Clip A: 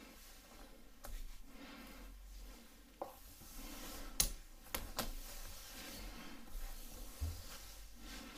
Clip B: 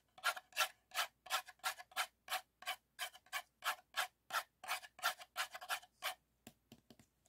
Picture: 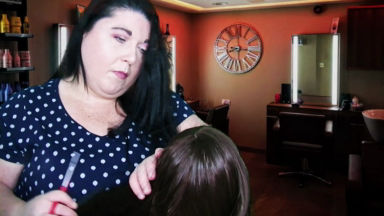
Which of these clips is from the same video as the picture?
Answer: A